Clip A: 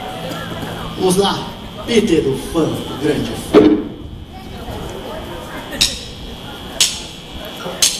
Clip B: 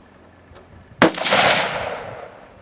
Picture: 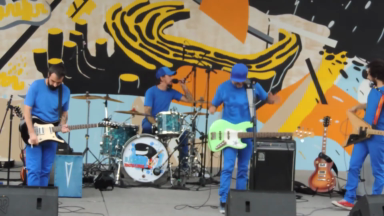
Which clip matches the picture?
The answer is A